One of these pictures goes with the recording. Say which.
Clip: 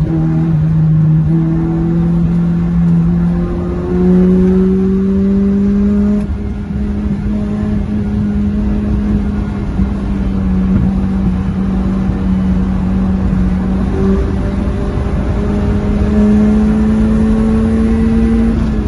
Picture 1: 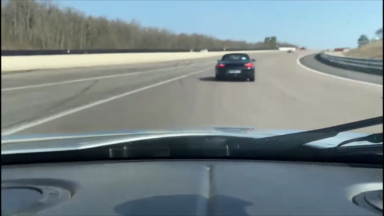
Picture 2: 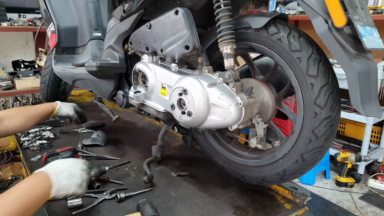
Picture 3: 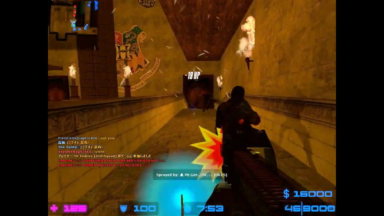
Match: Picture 1